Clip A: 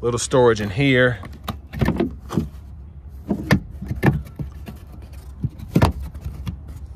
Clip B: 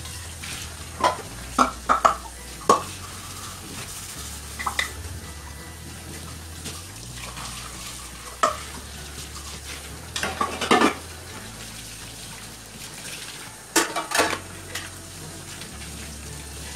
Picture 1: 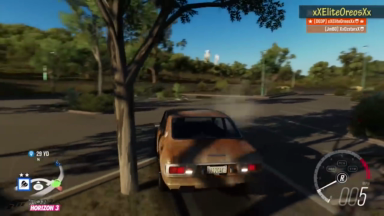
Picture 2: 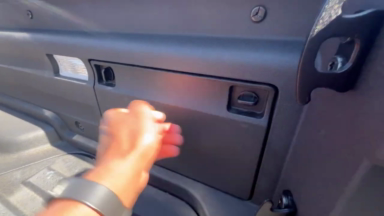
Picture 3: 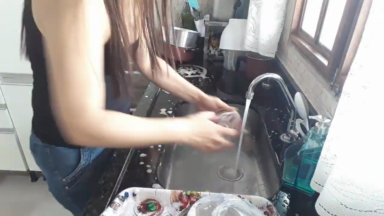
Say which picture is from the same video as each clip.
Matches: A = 2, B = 3